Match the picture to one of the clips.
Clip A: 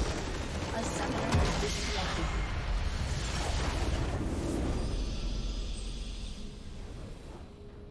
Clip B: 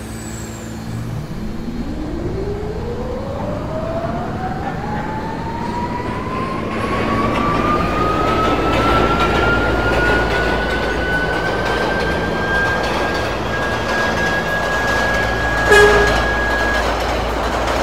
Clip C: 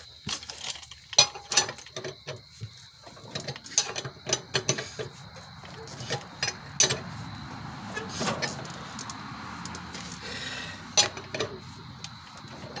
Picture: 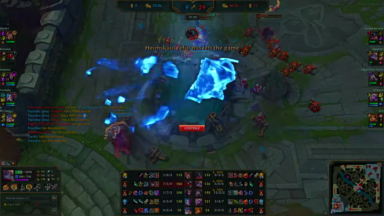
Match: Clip A